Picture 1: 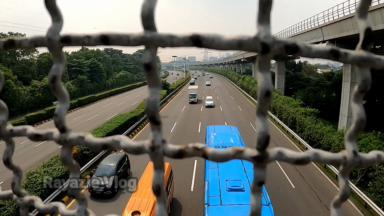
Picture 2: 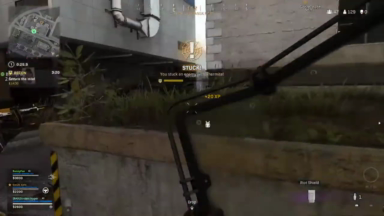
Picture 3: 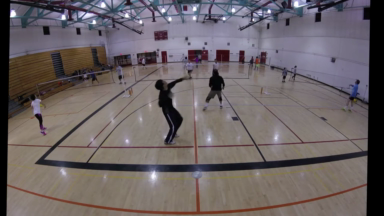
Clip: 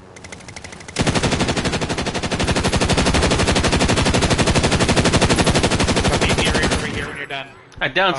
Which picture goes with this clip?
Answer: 2